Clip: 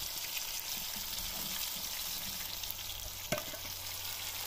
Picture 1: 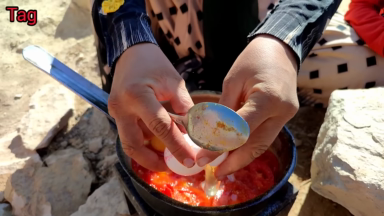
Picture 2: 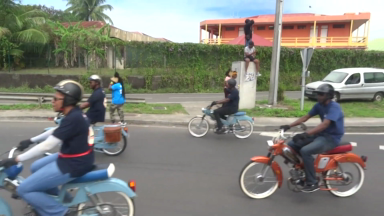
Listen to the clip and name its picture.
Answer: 1